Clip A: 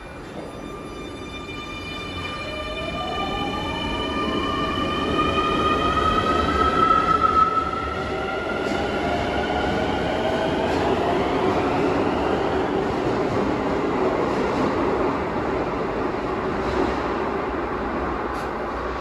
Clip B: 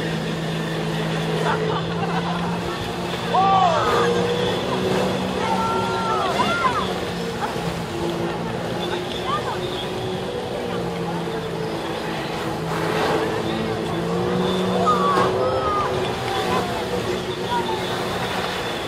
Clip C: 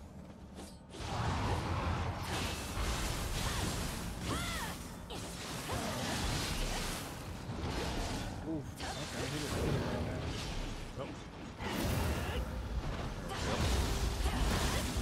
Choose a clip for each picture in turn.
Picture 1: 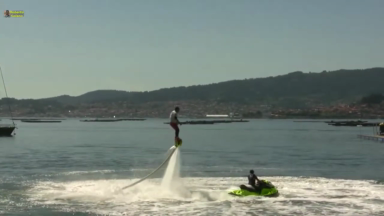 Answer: B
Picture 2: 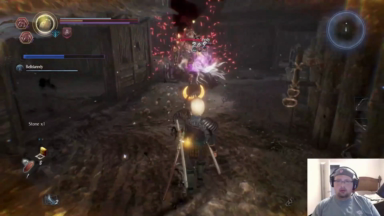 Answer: C